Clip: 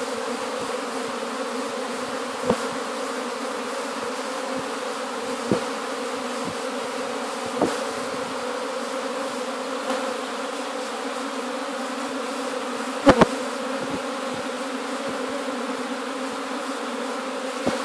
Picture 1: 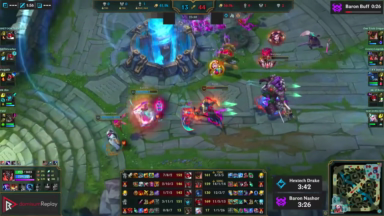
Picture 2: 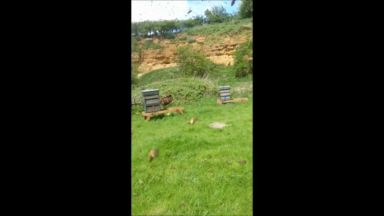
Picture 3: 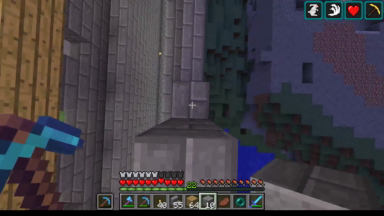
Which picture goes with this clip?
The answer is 2